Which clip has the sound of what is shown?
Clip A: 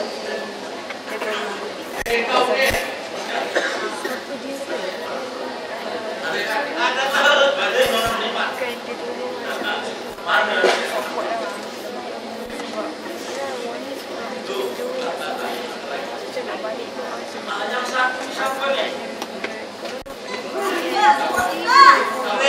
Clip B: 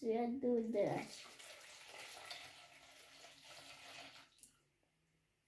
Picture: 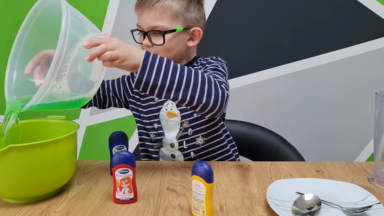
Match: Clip B